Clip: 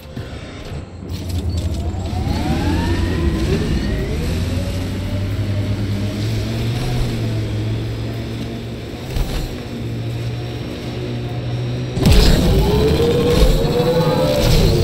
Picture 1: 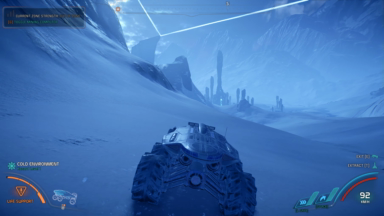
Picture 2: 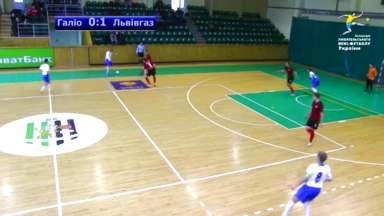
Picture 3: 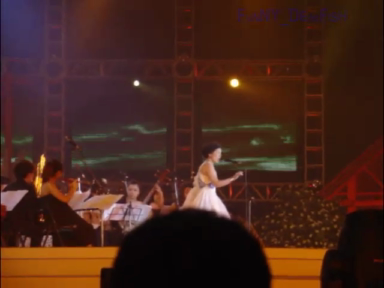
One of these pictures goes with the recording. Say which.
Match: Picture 1